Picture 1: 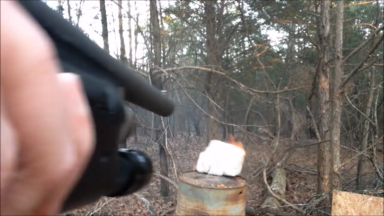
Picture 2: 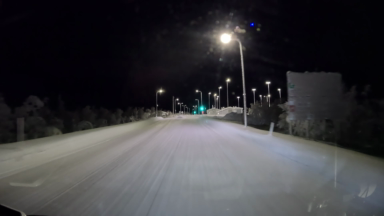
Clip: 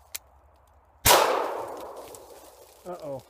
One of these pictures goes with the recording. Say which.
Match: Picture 1